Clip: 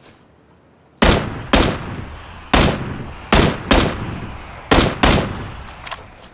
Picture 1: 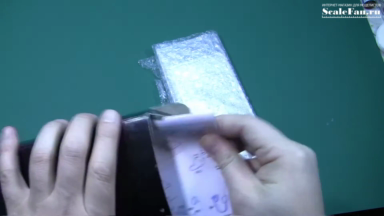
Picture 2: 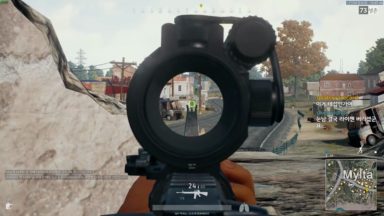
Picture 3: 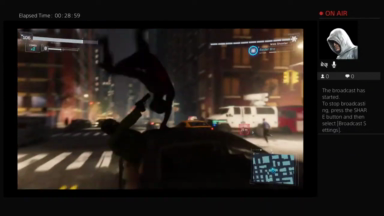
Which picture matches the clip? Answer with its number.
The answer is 2